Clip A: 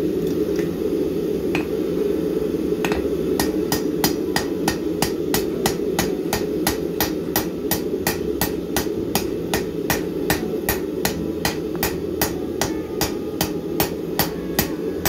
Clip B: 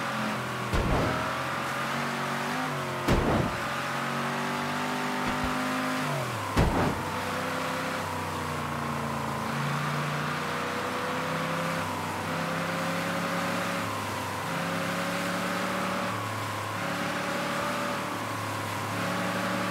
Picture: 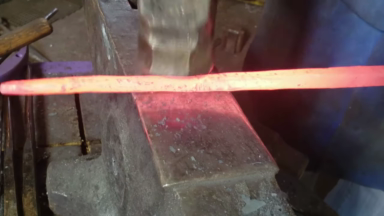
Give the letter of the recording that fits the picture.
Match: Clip A